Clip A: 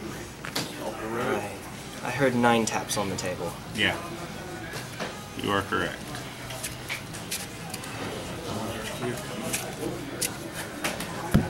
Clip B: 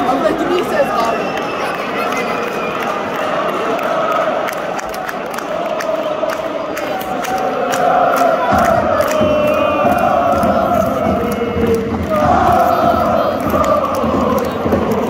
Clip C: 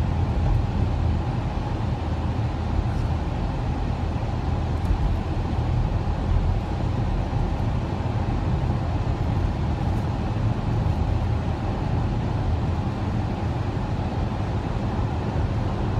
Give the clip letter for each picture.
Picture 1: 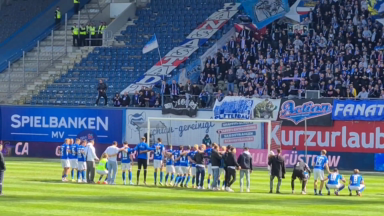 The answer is B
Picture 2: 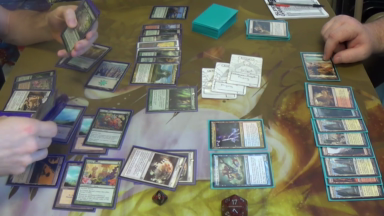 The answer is A